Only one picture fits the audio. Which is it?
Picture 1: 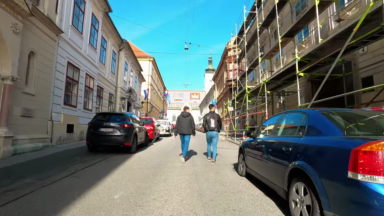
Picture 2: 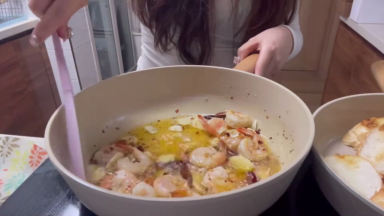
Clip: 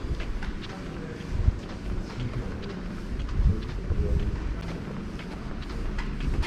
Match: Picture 1